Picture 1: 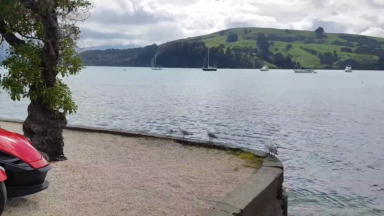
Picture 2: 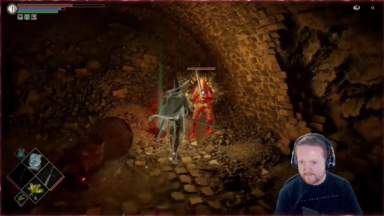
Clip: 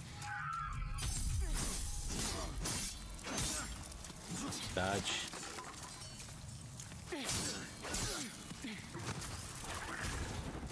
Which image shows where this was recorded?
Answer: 2